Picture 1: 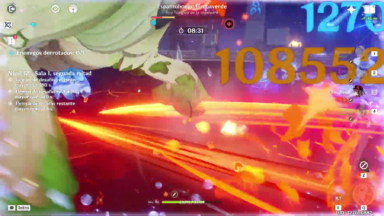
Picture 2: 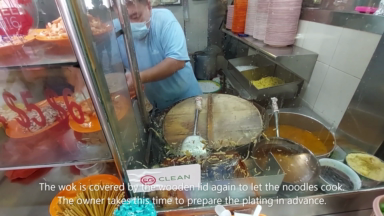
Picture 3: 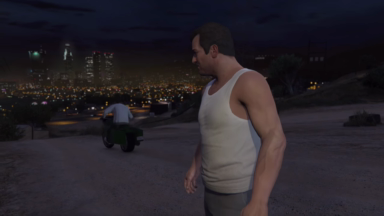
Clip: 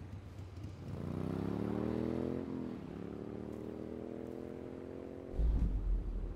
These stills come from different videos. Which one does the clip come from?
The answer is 3